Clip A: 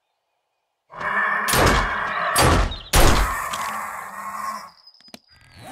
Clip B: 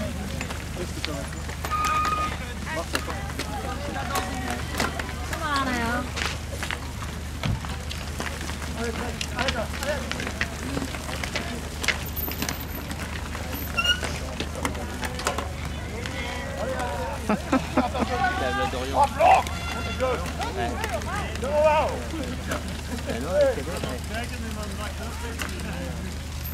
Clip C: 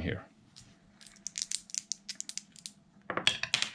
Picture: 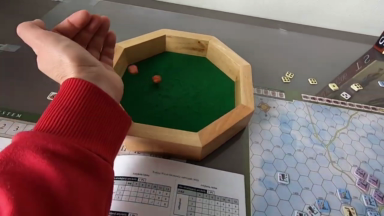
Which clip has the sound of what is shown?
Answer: C